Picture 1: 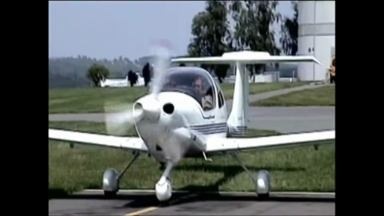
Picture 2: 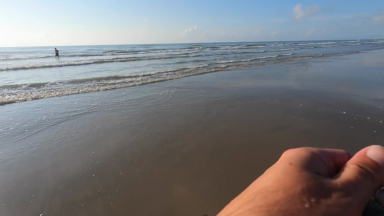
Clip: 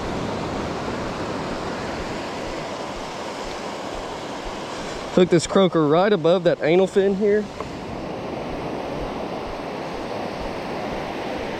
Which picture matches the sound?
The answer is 2